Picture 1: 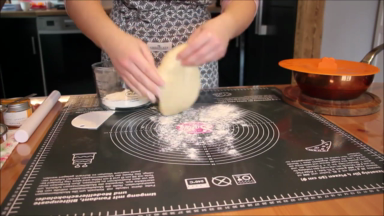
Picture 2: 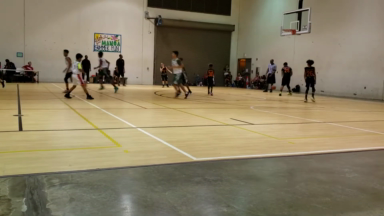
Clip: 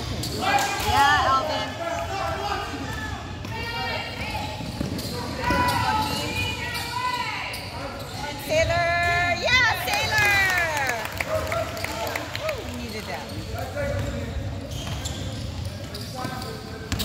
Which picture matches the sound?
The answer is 2